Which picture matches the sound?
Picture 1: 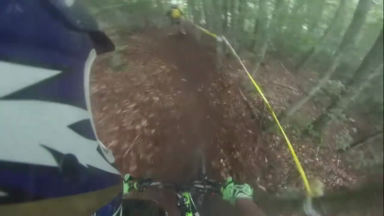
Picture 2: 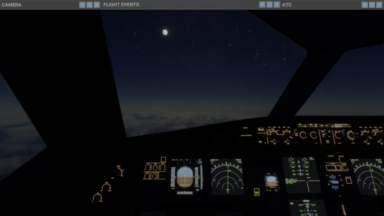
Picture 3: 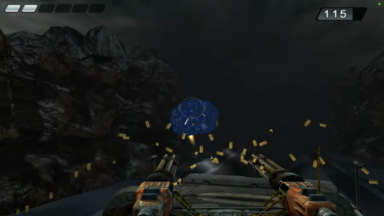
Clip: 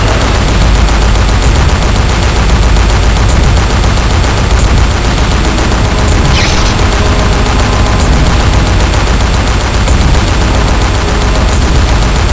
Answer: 3